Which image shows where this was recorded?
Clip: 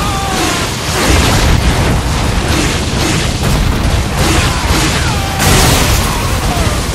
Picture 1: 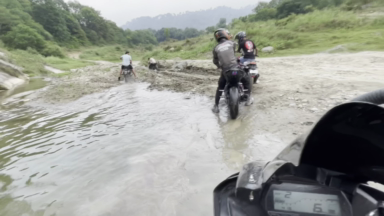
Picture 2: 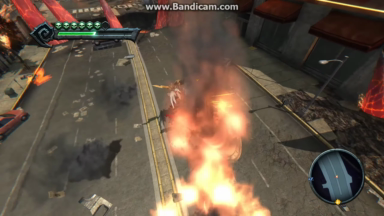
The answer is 2